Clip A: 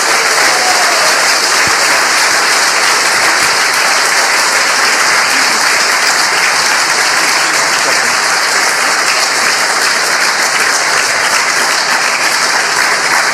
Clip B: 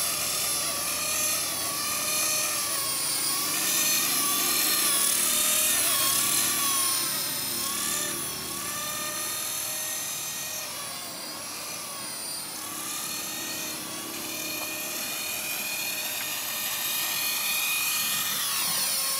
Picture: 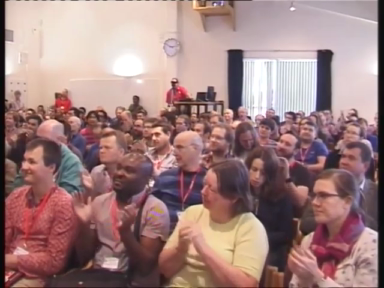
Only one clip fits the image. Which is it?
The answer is A